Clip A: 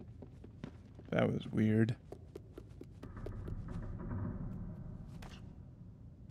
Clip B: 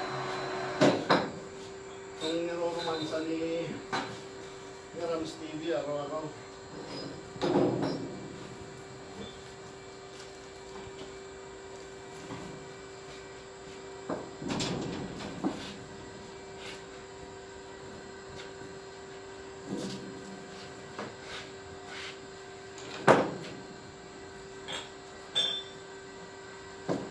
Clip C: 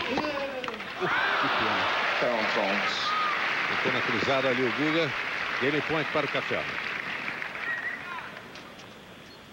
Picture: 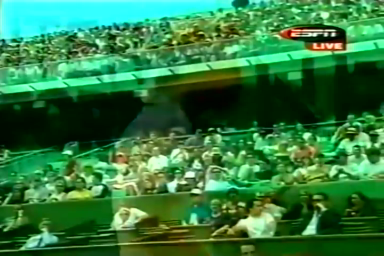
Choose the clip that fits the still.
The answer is C